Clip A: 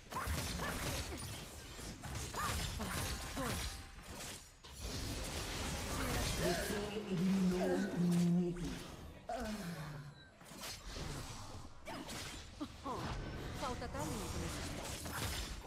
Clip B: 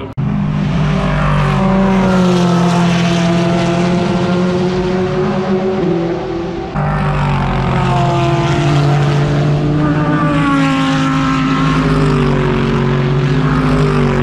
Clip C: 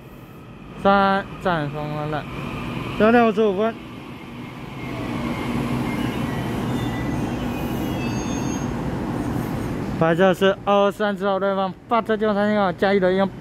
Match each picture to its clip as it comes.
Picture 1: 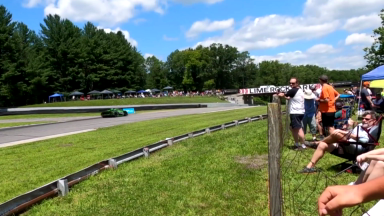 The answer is B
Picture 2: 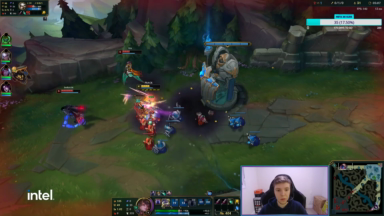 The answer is A